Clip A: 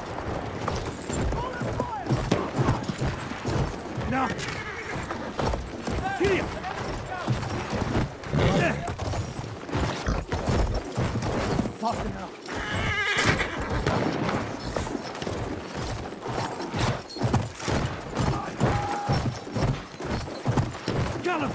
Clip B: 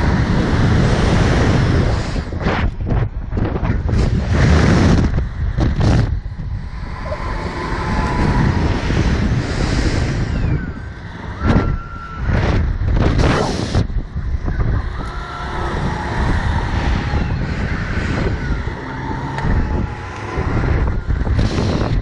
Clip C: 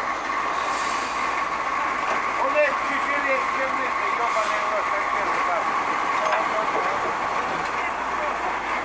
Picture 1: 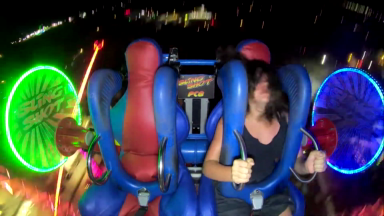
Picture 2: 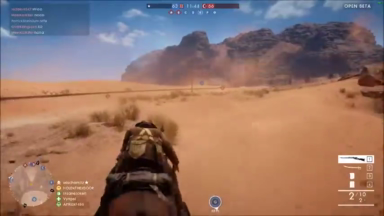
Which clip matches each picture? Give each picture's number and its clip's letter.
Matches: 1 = B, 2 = A